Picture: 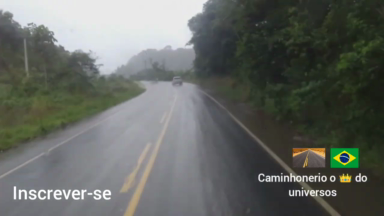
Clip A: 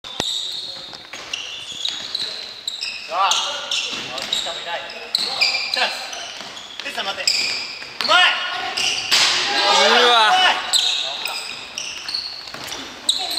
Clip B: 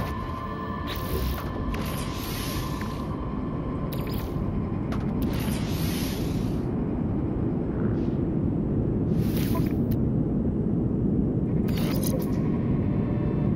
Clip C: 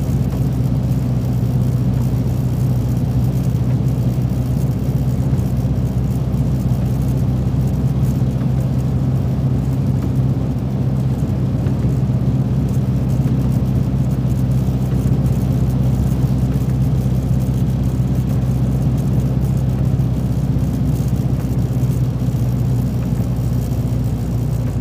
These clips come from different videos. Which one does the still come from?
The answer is C